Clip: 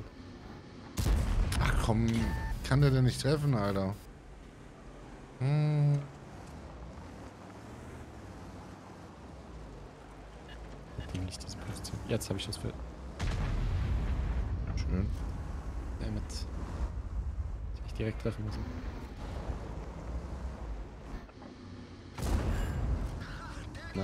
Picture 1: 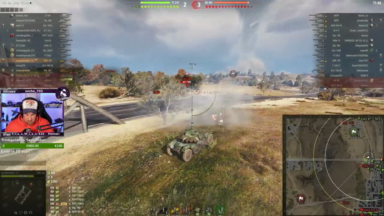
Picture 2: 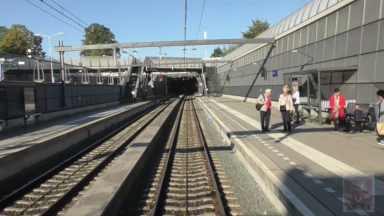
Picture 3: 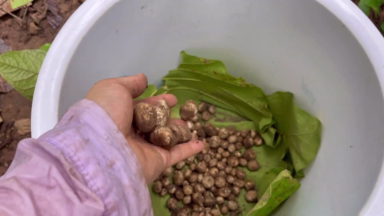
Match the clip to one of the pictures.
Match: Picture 1